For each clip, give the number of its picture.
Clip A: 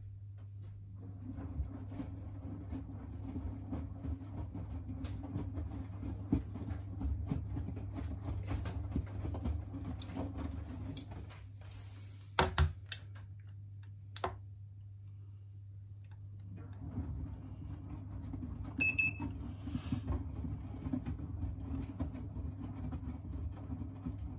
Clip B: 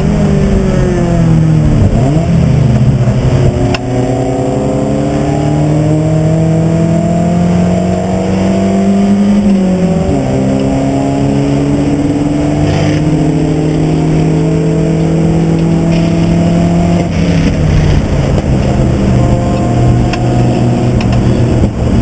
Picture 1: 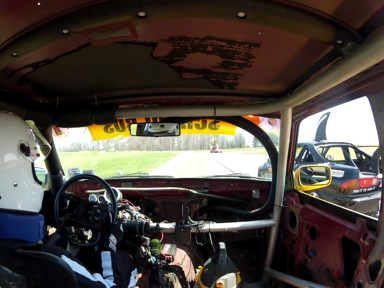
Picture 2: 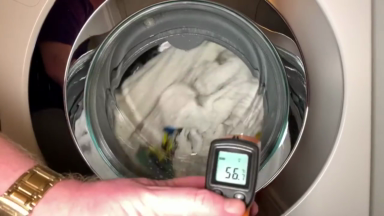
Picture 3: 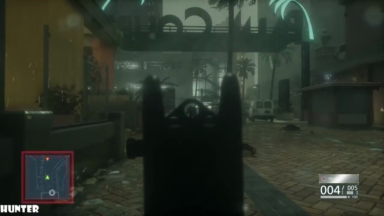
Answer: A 2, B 1